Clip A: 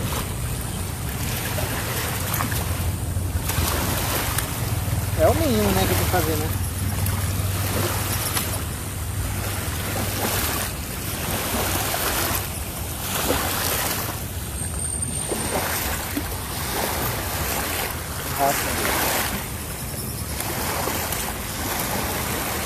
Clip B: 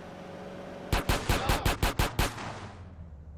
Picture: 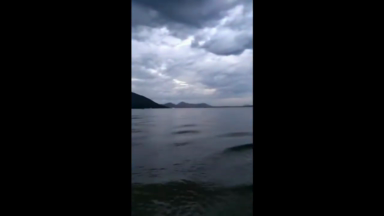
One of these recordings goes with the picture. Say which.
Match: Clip A